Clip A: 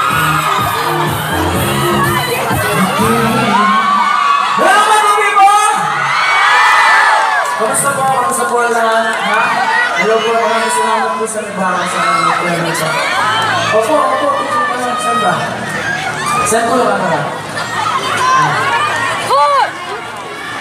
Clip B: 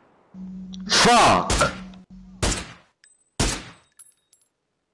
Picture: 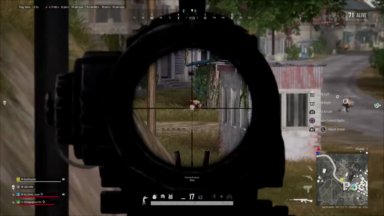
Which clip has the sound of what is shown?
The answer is B